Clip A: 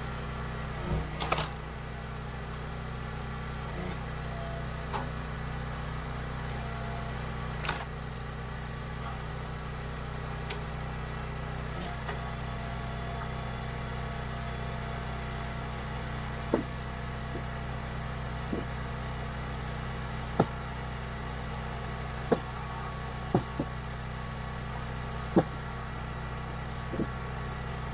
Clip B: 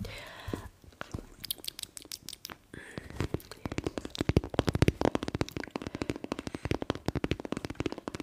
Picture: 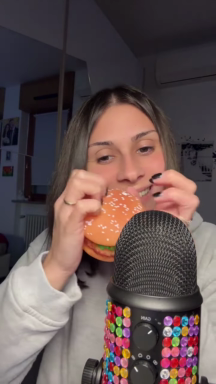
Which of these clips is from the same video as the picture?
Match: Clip B